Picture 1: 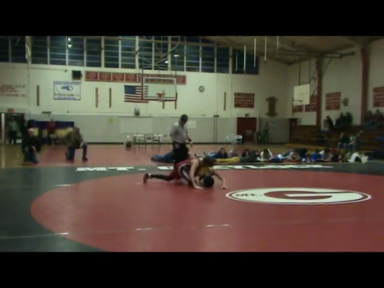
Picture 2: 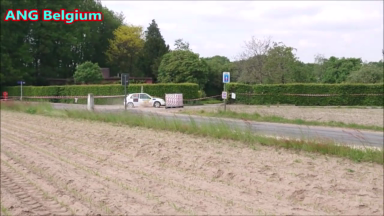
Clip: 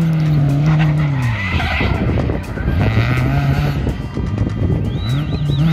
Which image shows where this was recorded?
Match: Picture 2